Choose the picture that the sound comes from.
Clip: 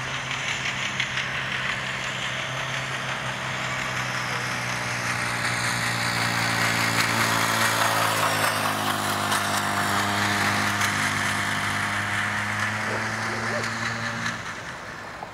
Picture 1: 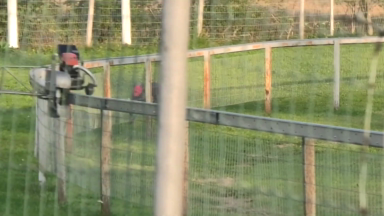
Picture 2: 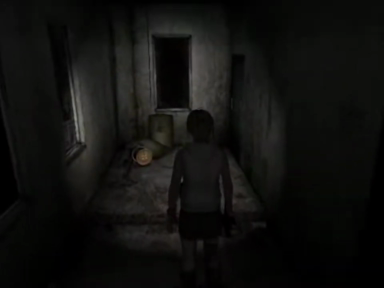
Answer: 1